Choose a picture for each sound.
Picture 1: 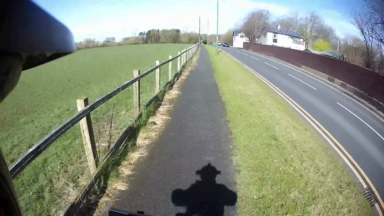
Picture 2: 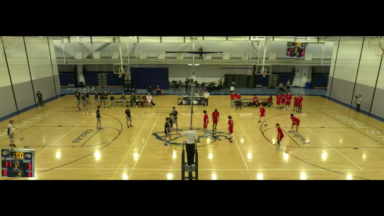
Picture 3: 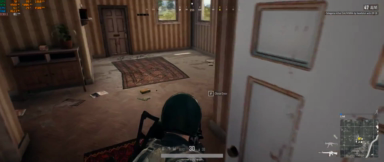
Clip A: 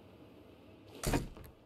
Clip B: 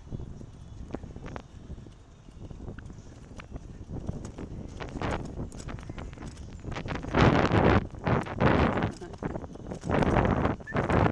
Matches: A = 3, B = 1